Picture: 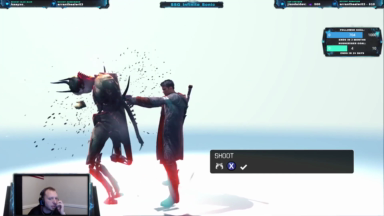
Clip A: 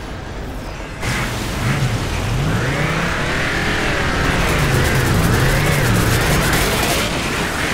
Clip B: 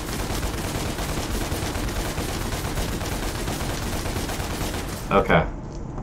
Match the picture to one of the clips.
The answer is B